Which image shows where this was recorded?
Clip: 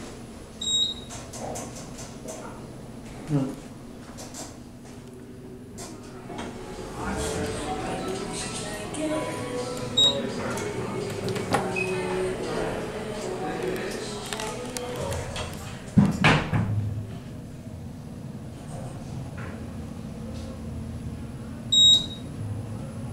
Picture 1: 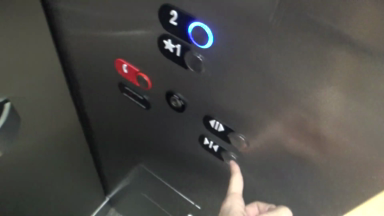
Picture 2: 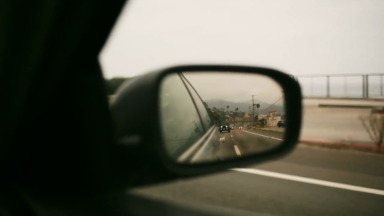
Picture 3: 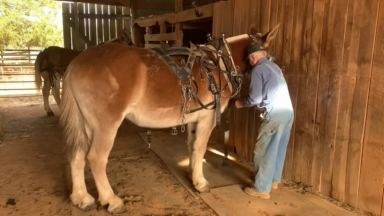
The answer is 1